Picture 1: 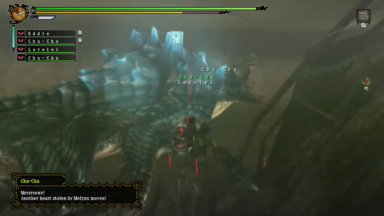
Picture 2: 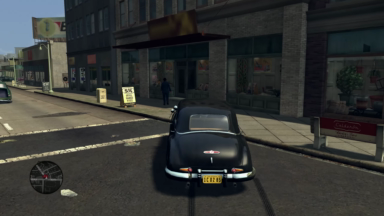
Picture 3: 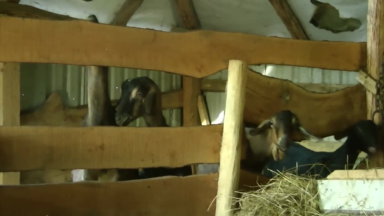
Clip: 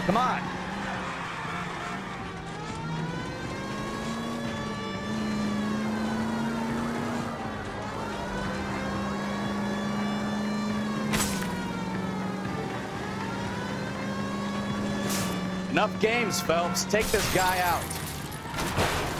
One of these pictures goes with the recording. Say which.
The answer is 2